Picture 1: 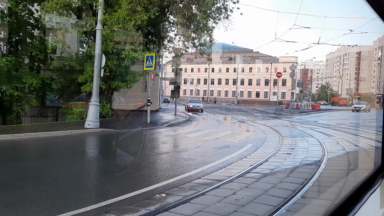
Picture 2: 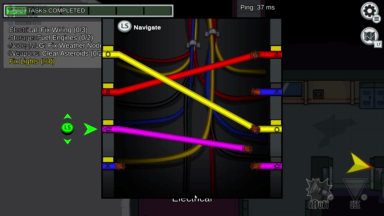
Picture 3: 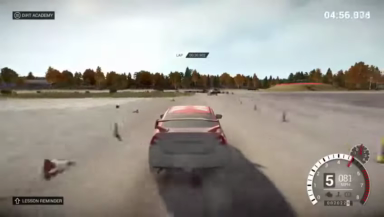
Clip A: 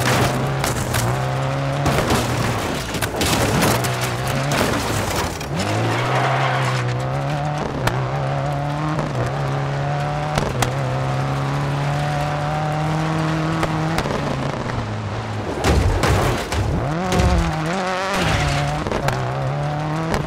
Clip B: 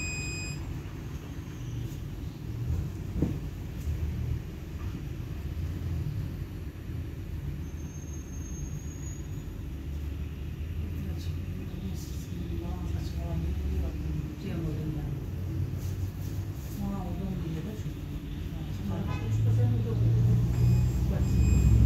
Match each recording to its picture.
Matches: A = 3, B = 1